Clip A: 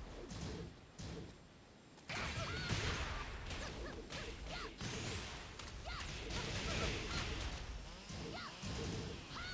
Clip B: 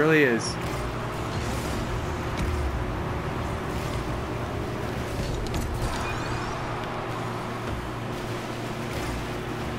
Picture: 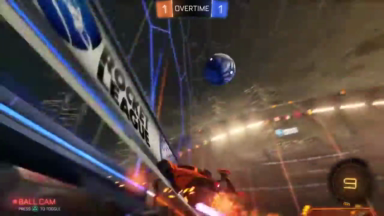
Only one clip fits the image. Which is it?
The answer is B